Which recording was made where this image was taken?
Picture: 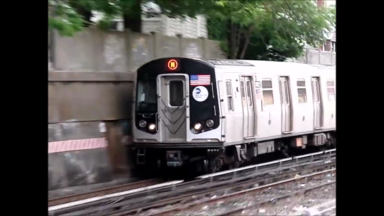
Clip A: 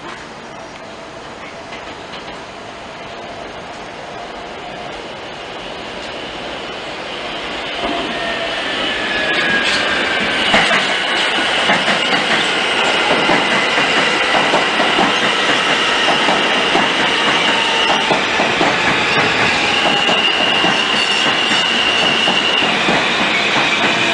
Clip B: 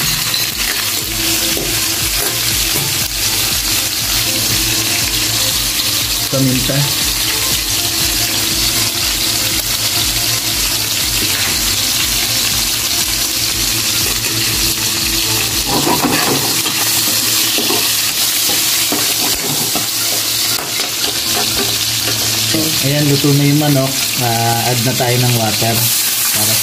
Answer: A